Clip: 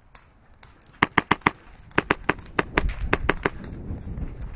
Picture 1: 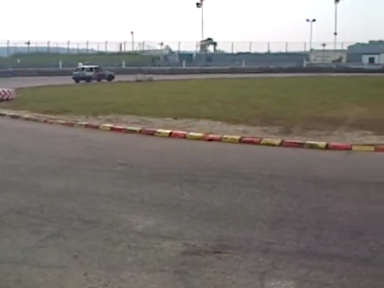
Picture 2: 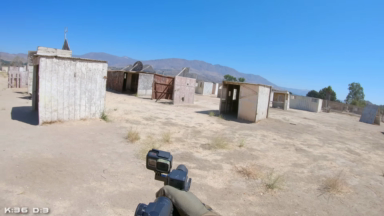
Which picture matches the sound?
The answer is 2